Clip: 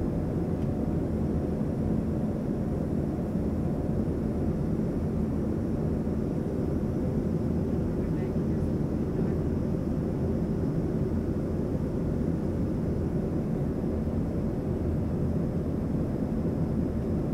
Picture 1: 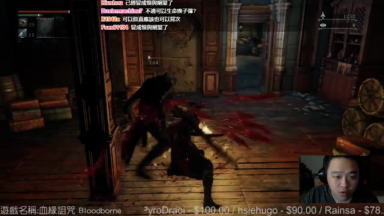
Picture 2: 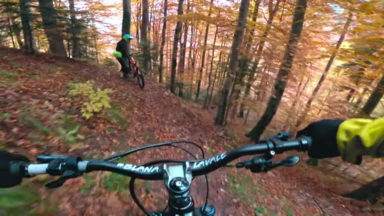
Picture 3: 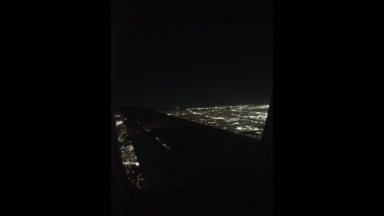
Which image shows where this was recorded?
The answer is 3